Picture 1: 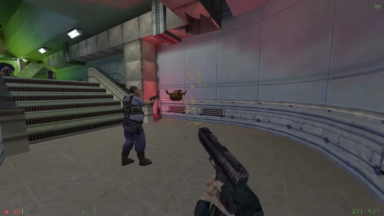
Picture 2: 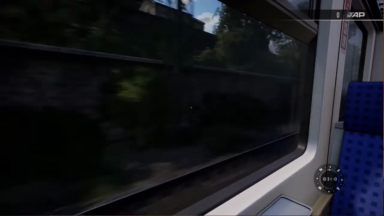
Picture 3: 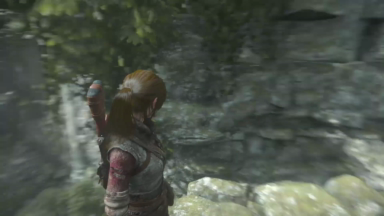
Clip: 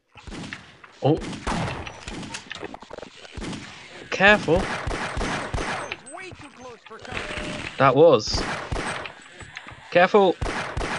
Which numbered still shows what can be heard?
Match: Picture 1